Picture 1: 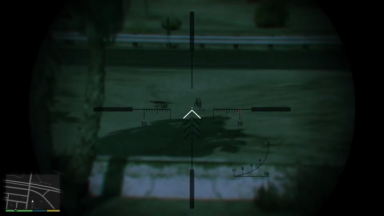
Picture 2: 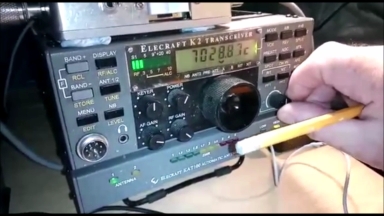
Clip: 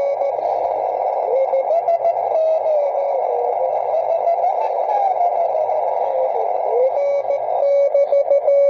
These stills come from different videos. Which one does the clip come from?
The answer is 2